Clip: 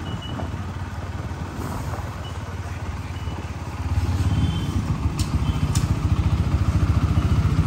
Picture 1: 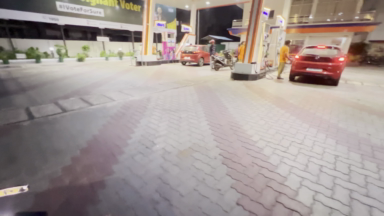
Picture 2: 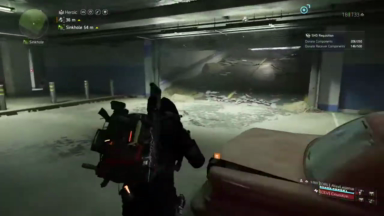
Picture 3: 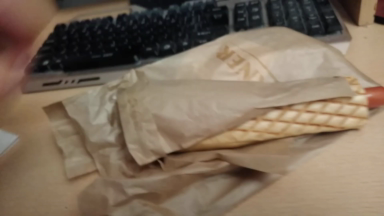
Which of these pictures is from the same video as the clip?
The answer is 1